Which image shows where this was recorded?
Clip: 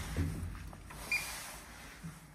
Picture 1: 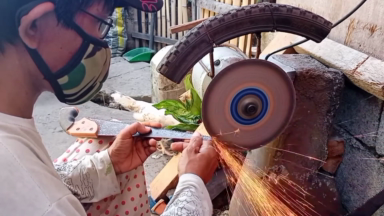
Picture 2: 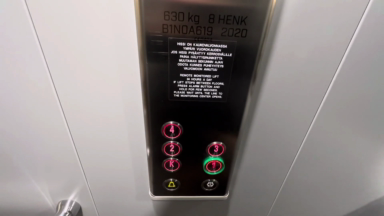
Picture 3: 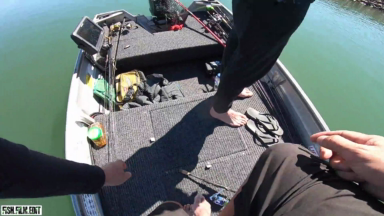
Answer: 2